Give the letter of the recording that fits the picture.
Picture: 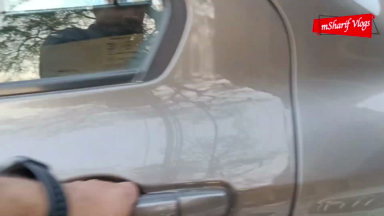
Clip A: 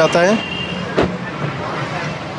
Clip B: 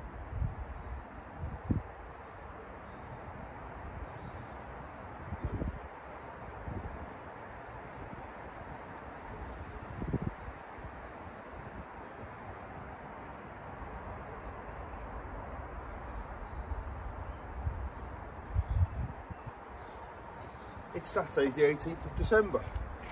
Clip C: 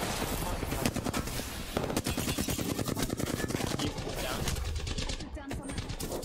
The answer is A